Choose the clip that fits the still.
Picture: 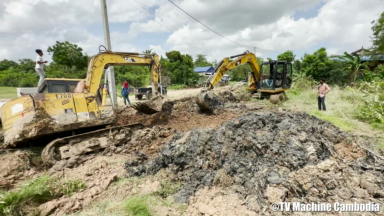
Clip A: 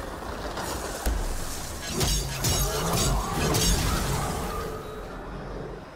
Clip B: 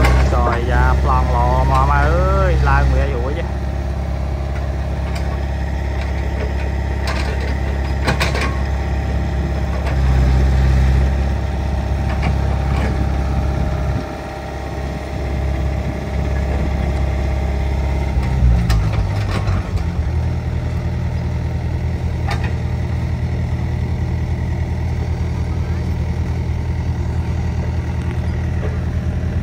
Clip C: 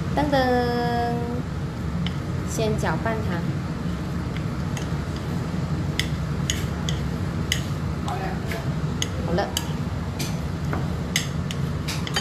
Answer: B